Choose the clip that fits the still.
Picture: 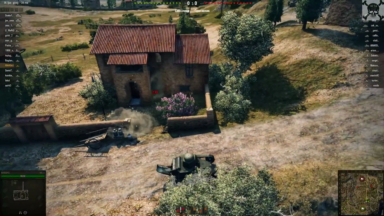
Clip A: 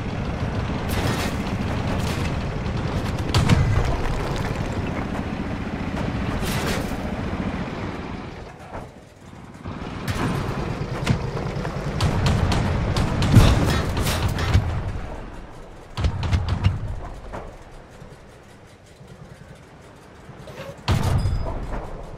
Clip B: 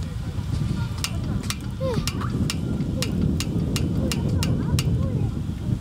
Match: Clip A